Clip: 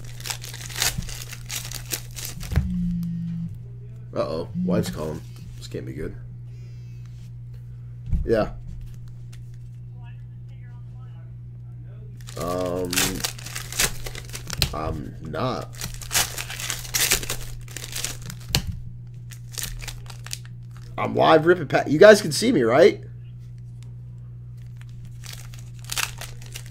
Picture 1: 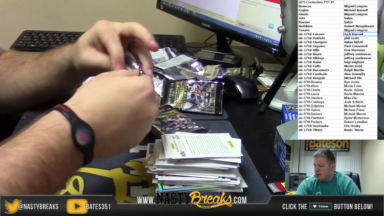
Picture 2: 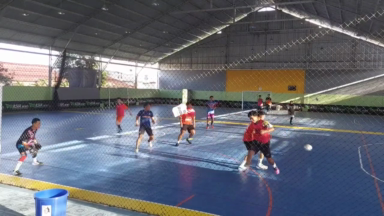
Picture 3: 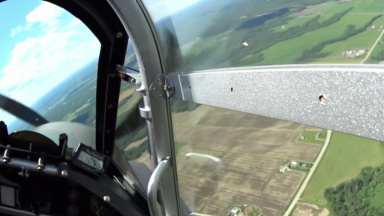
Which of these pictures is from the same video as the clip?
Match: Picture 1